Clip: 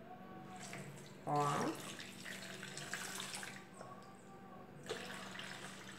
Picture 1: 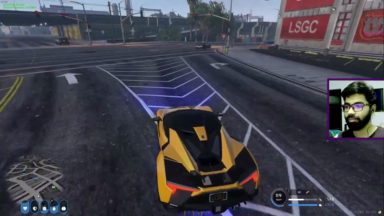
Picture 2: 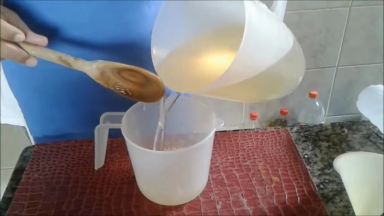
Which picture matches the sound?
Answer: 2